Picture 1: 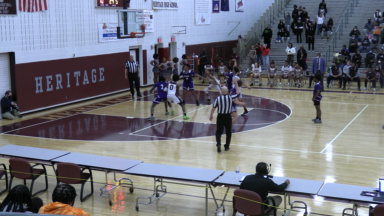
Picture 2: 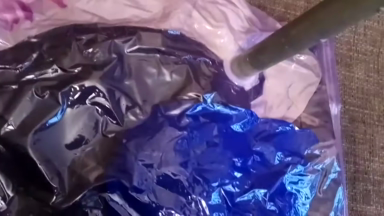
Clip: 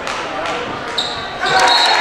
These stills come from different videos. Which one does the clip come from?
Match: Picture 1